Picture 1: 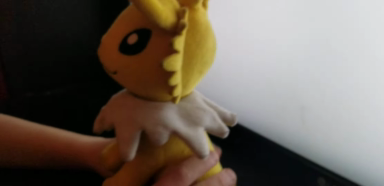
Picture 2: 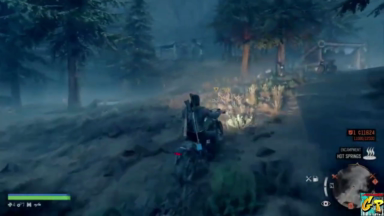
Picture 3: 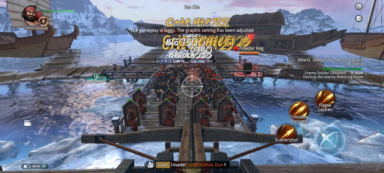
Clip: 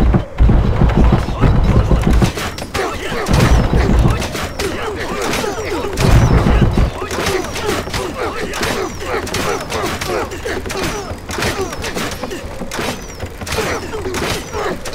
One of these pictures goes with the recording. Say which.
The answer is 3